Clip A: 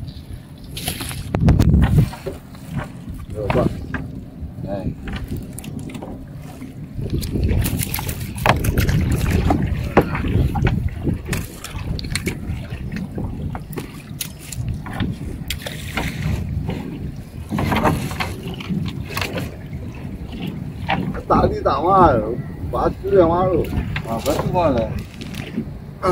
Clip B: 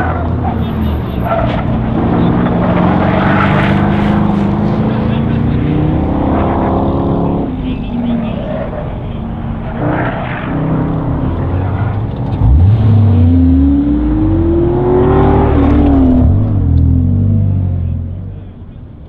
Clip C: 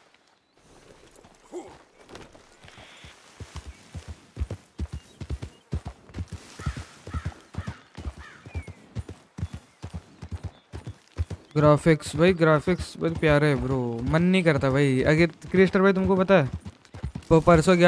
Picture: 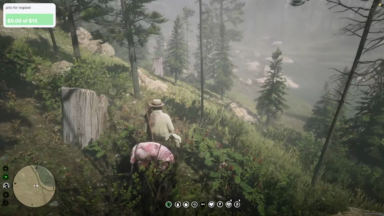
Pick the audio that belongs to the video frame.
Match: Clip C